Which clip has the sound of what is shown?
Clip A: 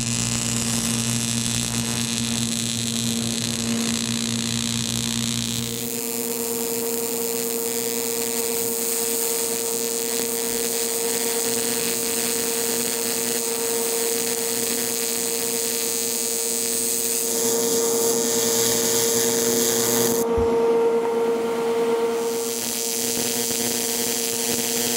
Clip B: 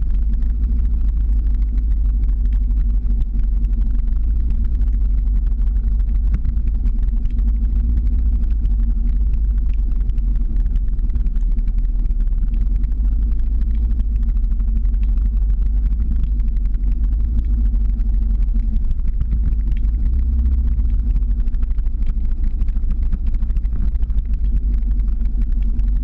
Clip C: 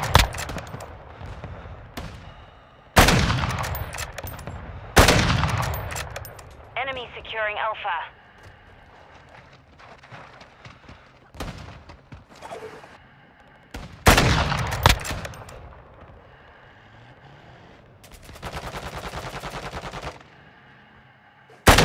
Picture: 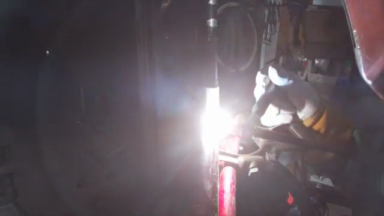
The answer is A